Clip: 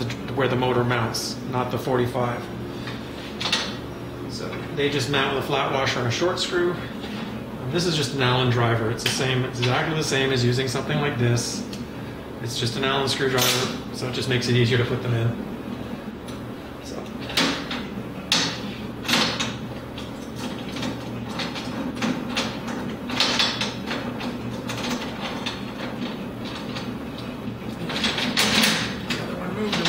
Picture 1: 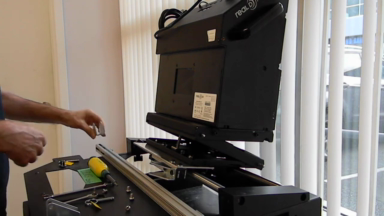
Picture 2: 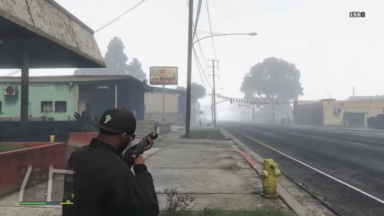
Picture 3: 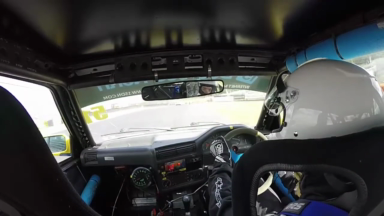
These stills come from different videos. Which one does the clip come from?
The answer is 1